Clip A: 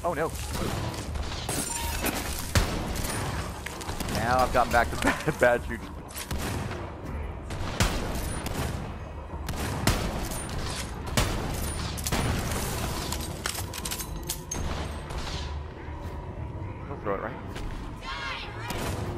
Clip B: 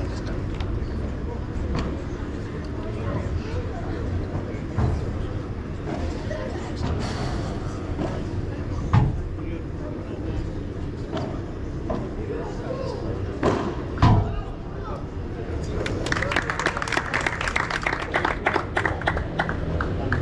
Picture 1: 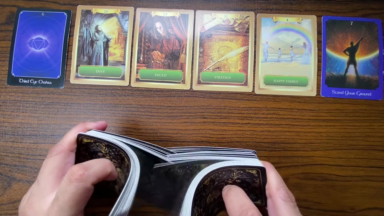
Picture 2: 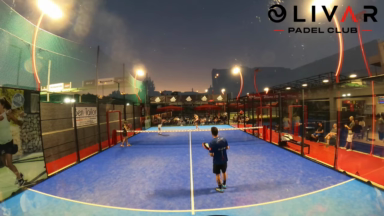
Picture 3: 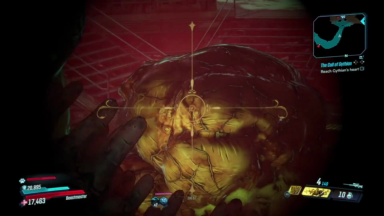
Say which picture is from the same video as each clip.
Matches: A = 3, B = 2